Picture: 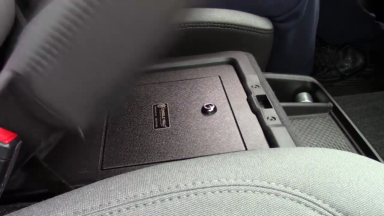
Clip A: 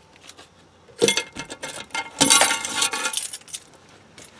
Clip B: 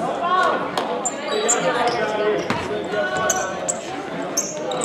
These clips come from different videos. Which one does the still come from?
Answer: A